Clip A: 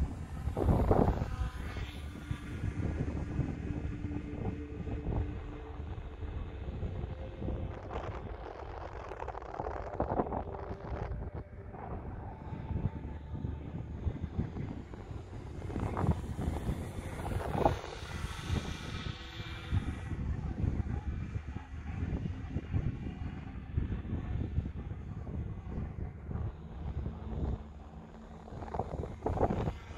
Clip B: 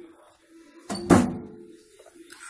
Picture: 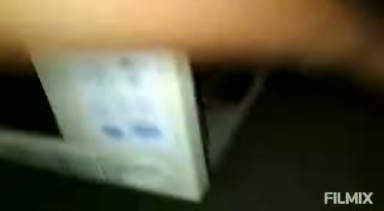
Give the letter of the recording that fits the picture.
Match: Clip B